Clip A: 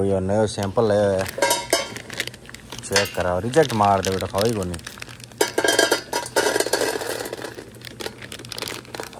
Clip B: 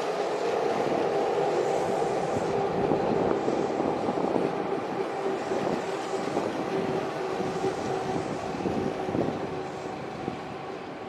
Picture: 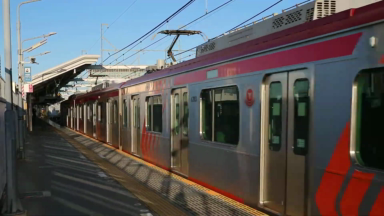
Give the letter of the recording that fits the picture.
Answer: B